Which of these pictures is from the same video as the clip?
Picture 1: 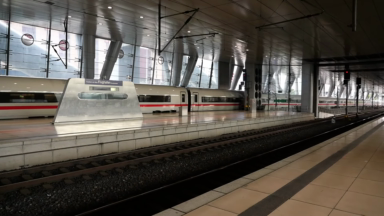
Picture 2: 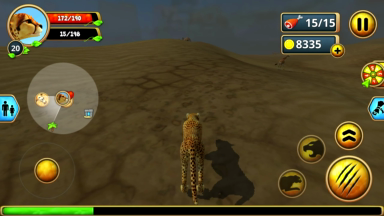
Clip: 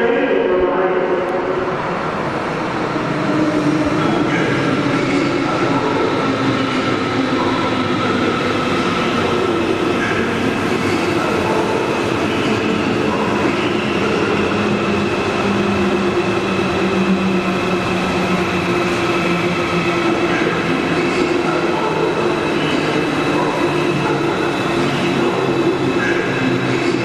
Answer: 1